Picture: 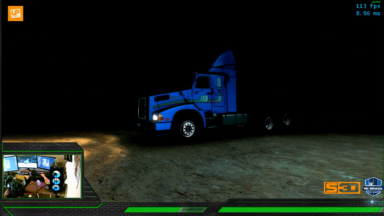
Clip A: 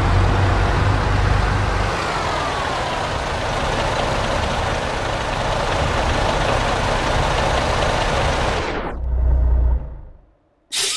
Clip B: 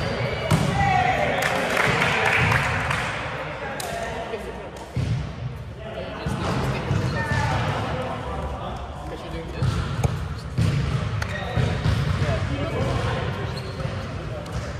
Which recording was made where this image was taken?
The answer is A